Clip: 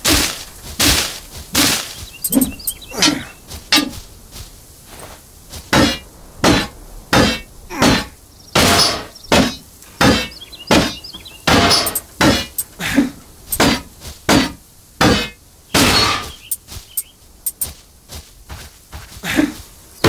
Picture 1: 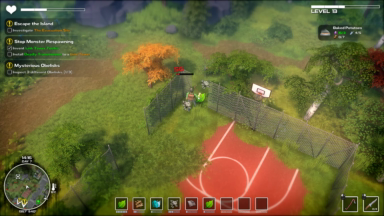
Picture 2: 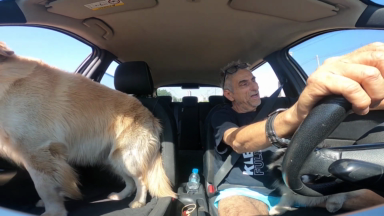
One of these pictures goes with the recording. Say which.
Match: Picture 1